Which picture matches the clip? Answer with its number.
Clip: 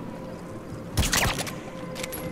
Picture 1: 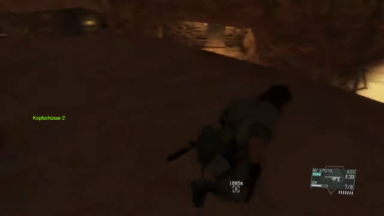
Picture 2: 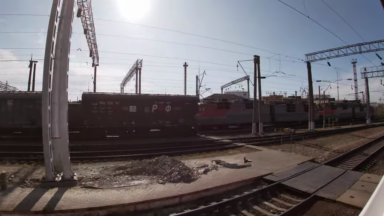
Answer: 1